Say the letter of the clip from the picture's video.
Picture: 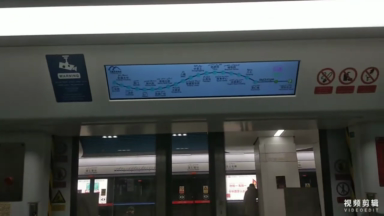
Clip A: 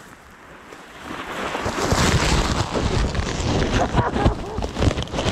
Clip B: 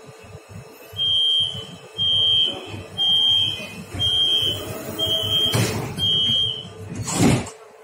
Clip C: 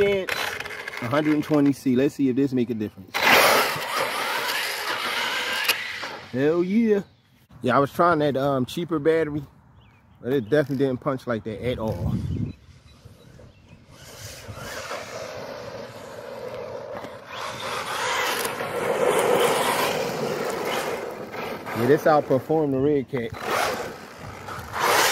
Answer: B